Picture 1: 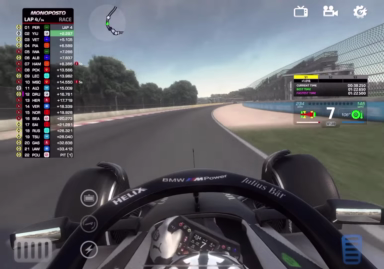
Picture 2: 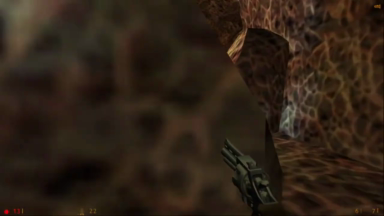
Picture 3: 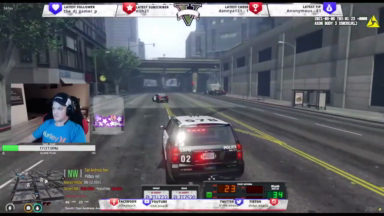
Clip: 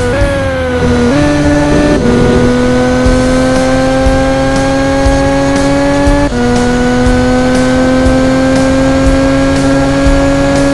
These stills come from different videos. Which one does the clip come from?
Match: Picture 1